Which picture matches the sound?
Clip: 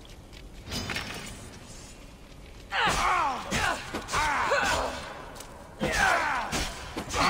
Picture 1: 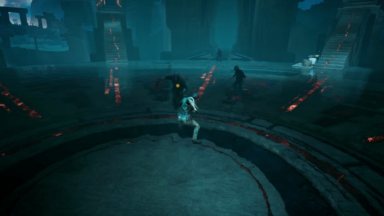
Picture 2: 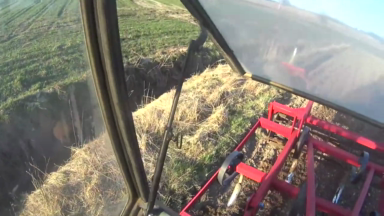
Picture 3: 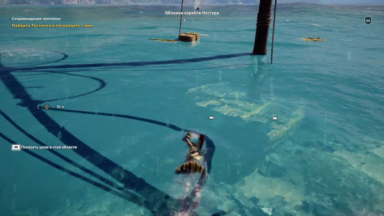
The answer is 1